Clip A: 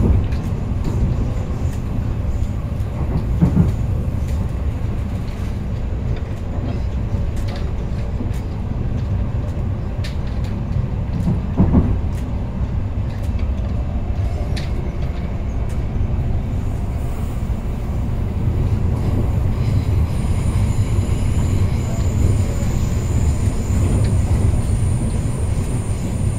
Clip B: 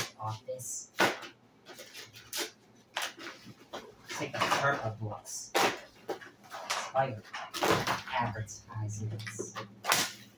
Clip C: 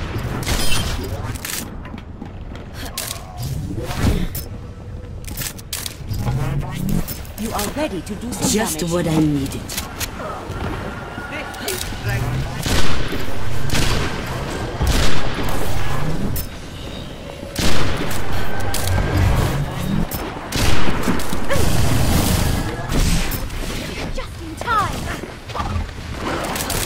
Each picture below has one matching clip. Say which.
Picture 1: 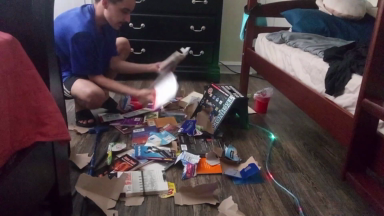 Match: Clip B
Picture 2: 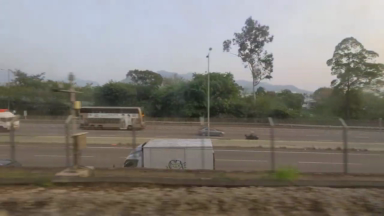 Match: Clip A